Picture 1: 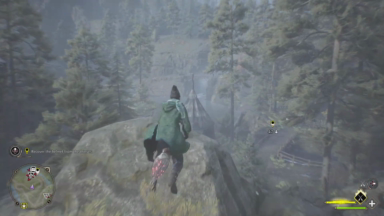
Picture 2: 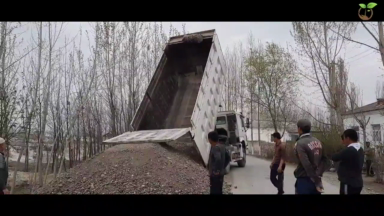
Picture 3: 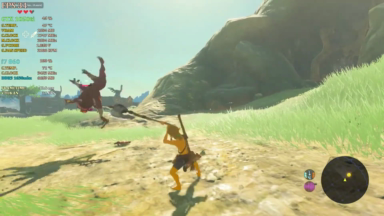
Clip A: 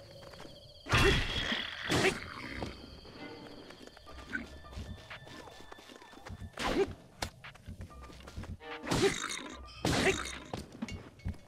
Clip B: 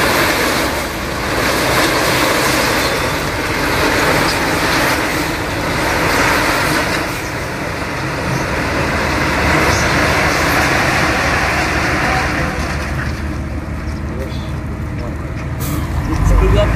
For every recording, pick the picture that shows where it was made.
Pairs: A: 3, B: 2